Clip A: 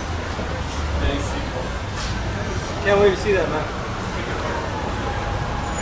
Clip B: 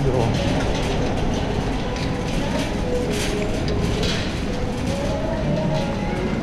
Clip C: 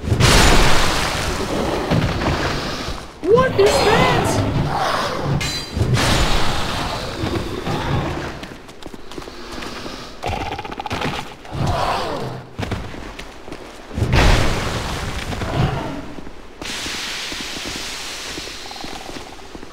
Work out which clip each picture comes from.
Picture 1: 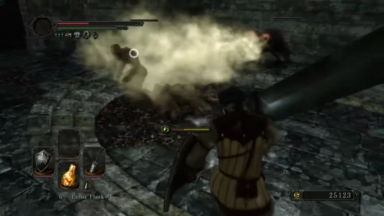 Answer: C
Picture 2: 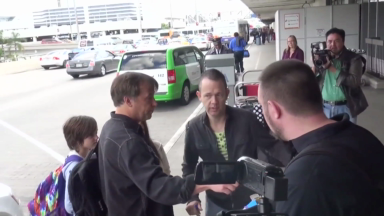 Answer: A